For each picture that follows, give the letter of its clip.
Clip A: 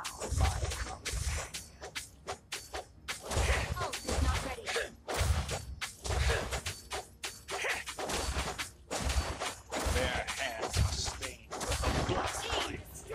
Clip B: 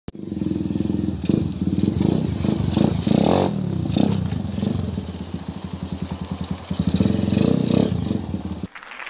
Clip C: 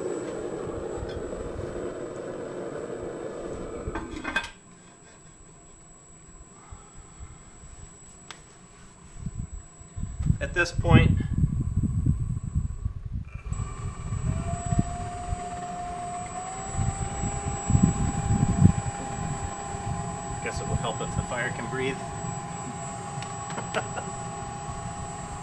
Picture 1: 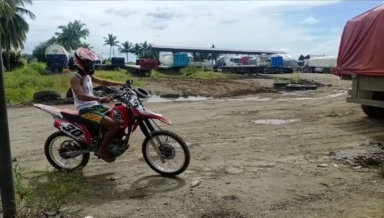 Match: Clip B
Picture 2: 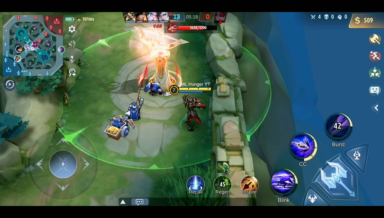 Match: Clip A